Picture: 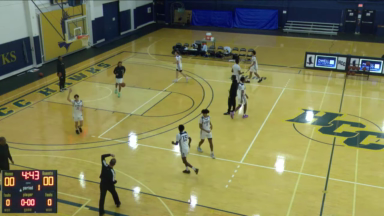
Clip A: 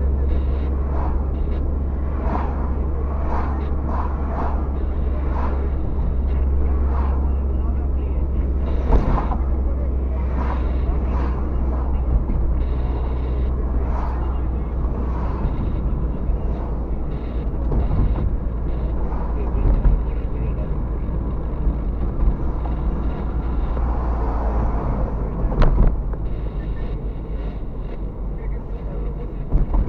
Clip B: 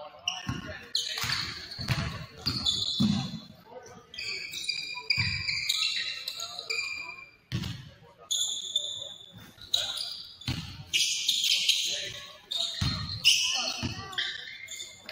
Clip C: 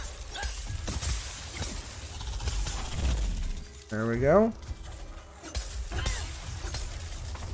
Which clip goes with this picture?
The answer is B